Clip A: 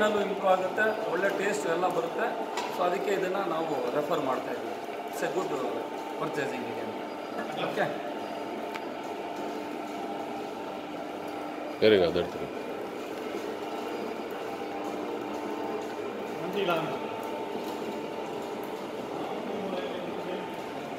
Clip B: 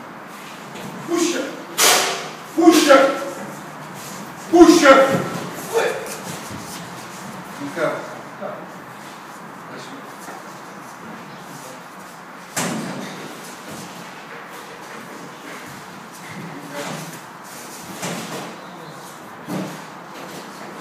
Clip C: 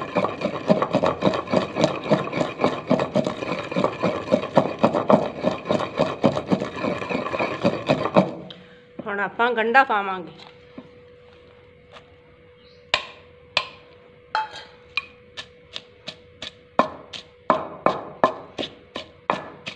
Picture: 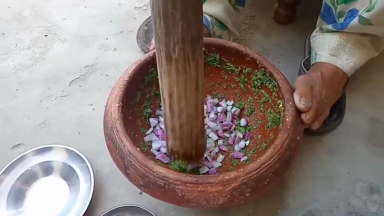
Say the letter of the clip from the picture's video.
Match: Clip C